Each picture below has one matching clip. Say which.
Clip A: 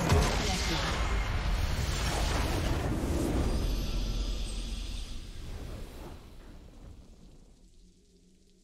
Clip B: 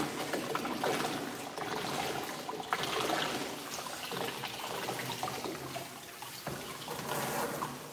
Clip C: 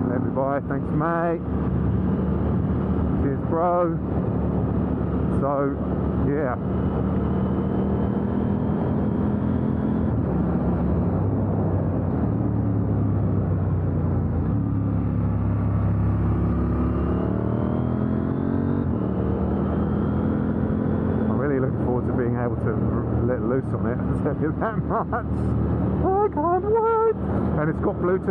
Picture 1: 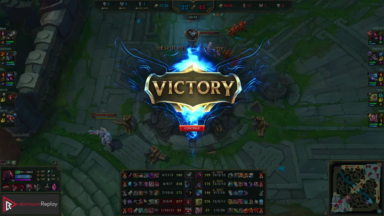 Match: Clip A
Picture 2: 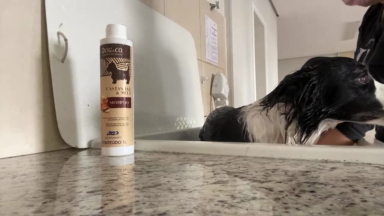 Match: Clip B